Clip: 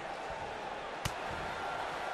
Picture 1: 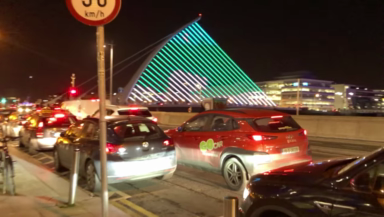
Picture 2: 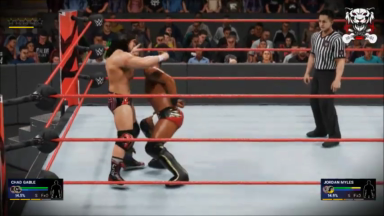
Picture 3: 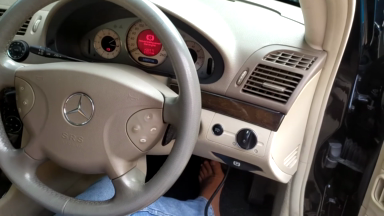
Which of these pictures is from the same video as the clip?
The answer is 2